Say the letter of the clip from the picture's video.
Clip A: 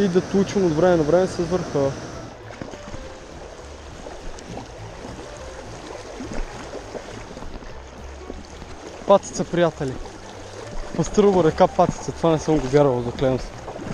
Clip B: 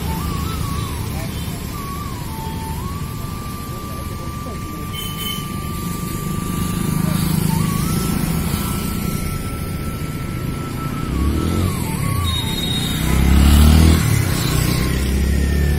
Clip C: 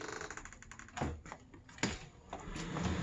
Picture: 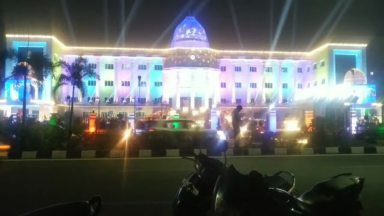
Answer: B